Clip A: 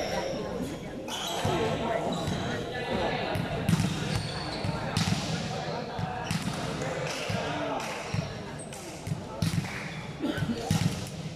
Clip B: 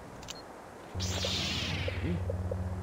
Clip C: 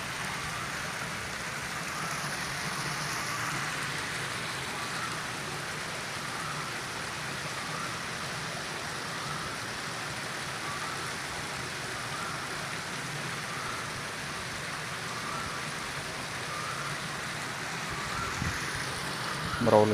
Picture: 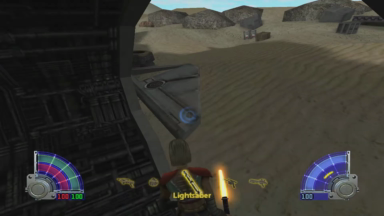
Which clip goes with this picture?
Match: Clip B